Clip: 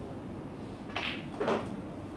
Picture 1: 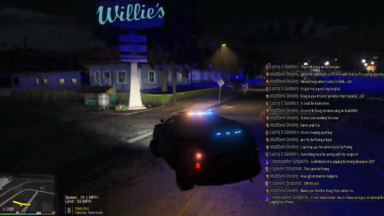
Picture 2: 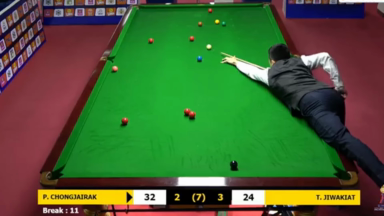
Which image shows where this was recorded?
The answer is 2